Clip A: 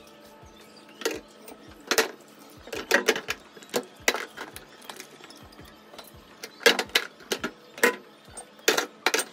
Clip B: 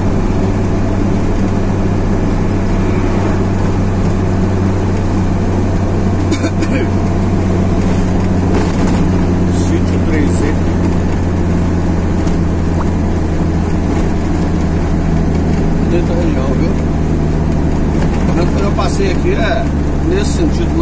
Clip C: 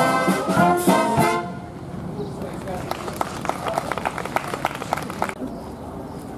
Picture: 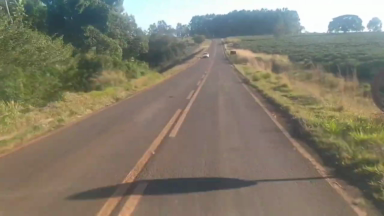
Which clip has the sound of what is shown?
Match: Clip B